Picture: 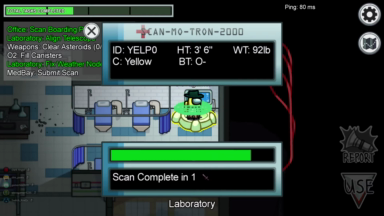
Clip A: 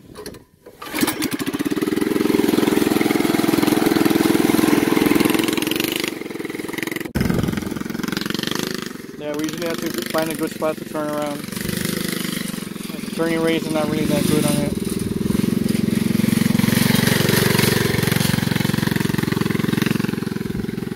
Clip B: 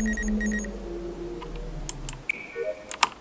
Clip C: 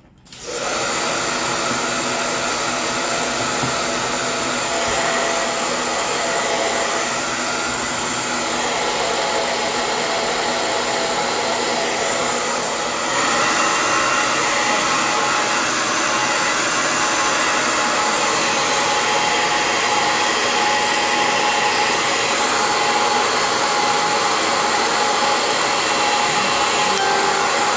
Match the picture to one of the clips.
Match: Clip B